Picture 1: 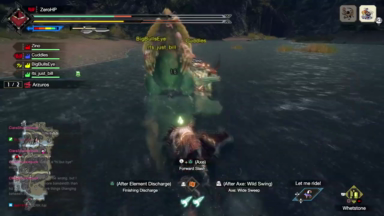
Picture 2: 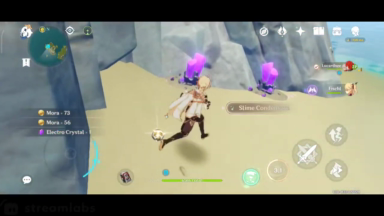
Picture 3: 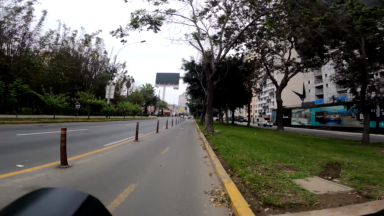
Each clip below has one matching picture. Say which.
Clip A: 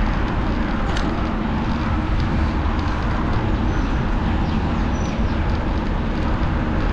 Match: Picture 3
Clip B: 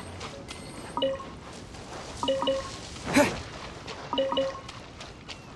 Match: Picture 2